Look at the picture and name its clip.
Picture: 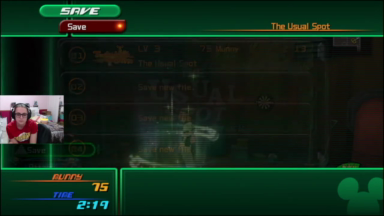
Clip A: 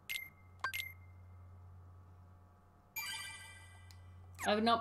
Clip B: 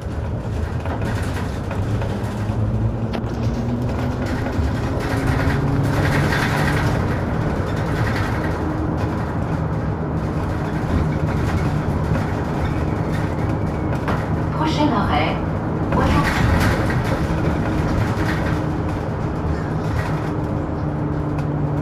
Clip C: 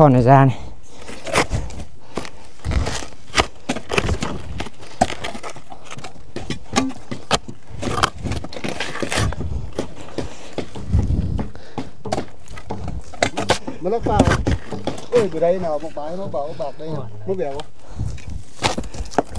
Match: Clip A